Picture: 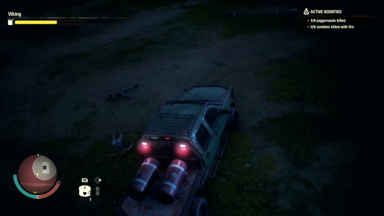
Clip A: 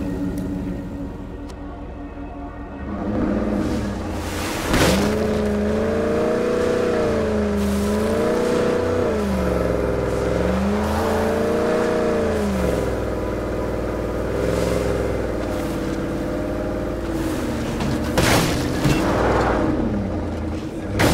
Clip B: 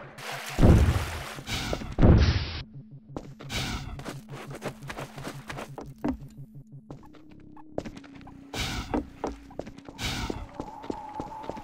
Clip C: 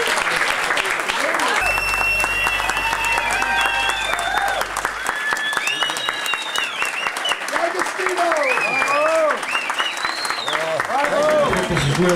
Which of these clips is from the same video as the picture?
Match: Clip A